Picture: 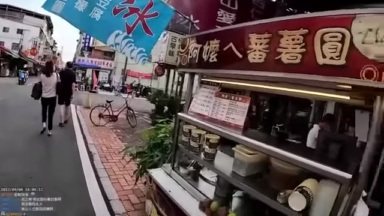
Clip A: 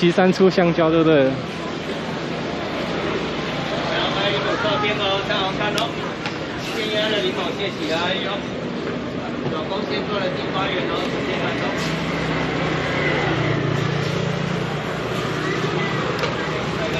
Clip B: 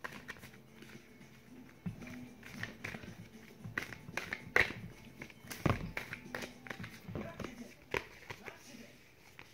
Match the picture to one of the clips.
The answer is A